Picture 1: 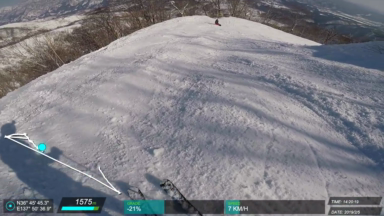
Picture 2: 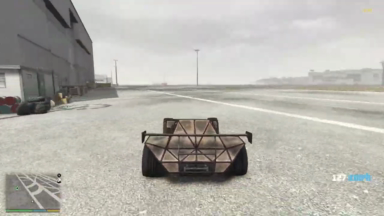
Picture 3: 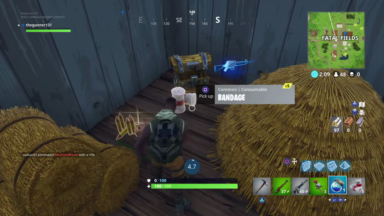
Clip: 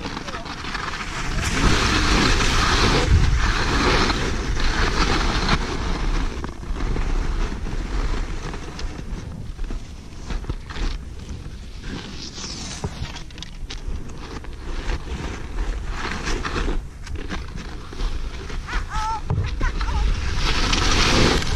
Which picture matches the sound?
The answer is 1